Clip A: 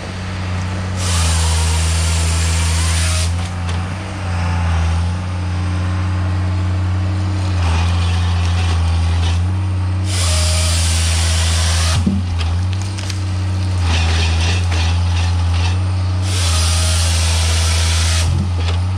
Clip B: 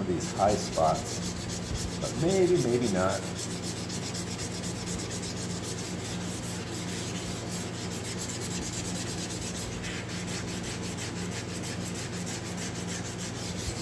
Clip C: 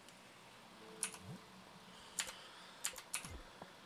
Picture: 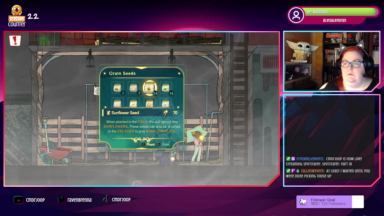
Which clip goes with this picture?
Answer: C